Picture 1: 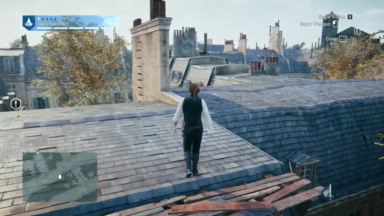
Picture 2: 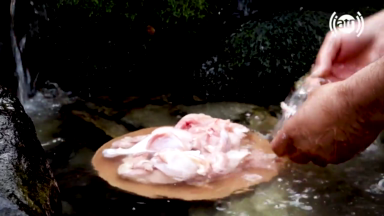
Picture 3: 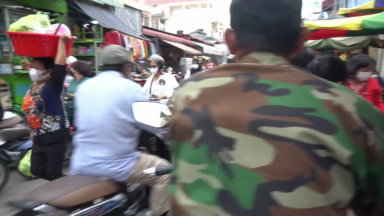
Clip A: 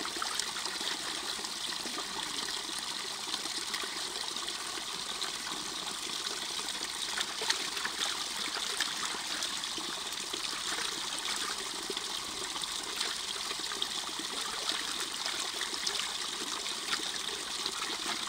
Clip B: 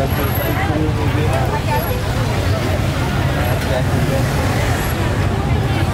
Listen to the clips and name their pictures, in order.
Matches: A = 2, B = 3